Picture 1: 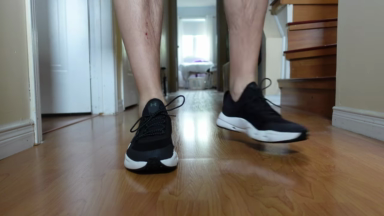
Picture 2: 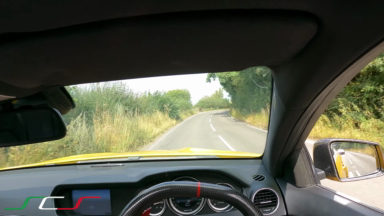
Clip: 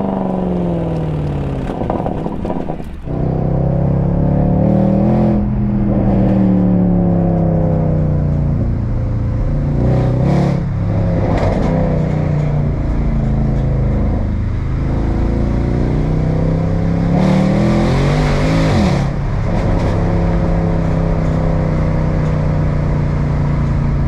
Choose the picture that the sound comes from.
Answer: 2